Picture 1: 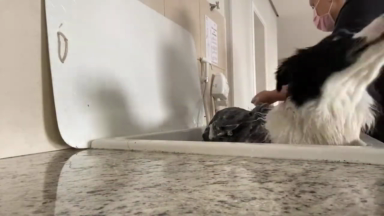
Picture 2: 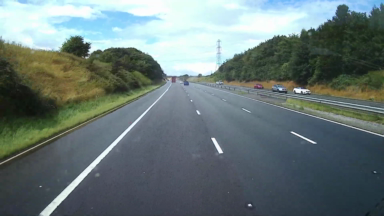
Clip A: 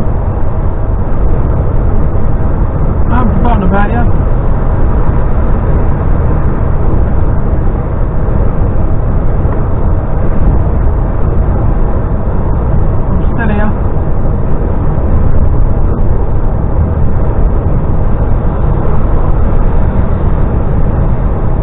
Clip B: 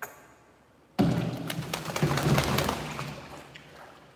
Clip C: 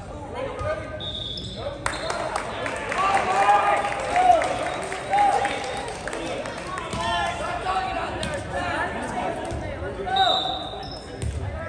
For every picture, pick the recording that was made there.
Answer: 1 B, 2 A